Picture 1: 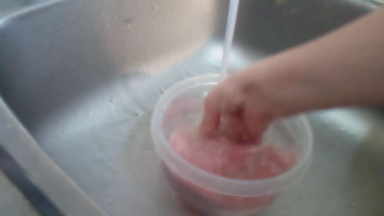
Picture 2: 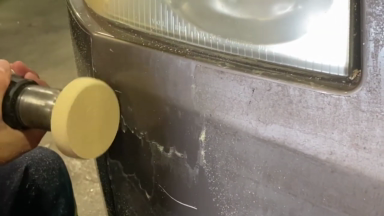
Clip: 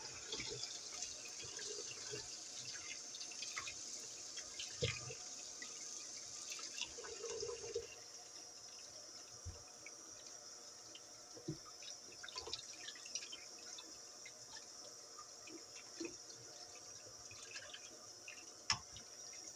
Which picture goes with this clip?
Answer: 1